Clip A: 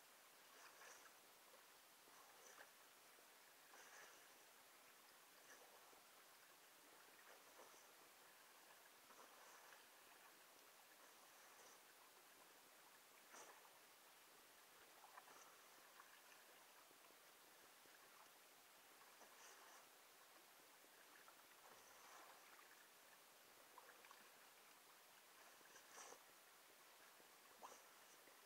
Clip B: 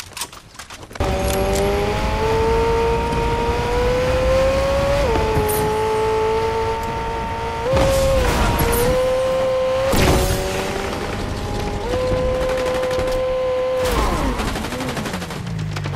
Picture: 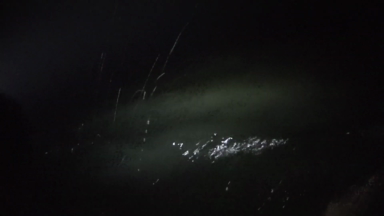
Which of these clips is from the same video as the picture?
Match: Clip A